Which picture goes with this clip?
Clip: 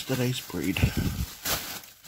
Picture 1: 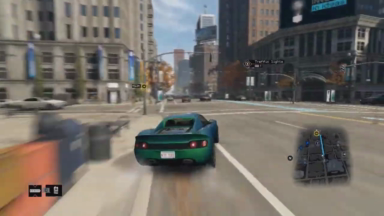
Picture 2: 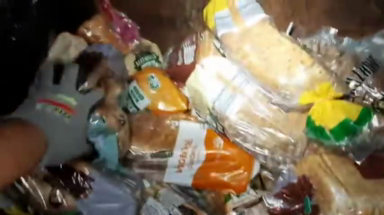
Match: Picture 2